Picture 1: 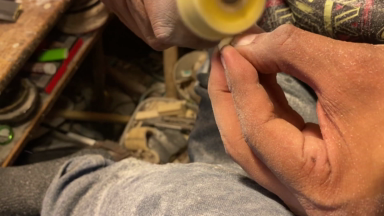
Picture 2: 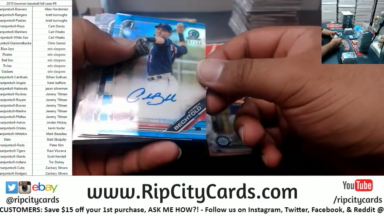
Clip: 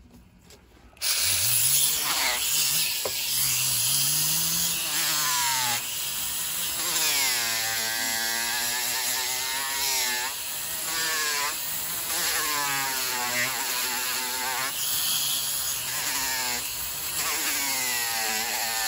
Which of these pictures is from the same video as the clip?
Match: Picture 1